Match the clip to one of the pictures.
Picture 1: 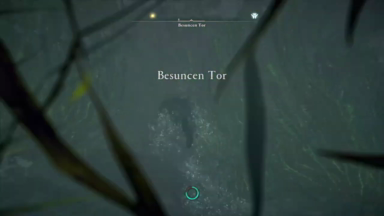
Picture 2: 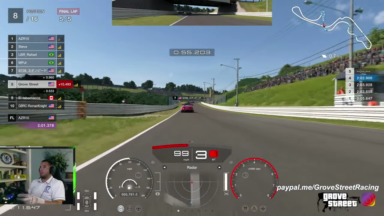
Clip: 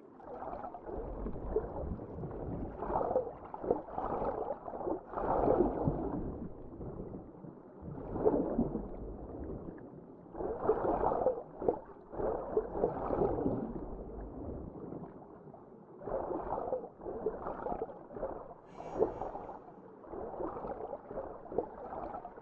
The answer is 1